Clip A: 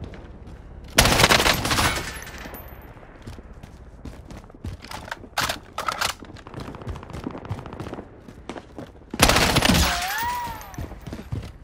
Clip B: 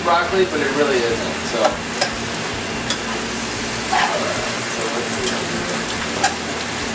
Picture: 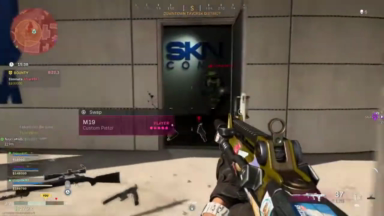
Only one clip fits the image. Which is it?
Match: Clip A